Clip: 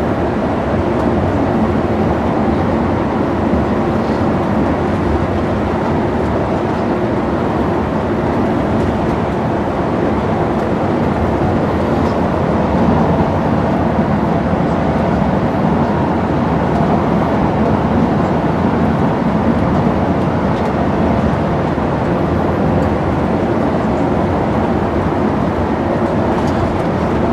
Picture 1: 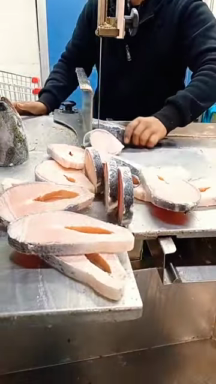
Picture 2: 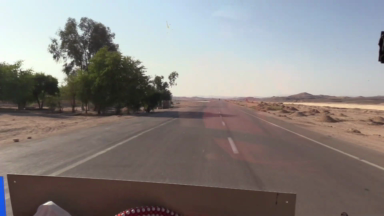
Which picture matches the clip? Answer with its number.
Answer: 2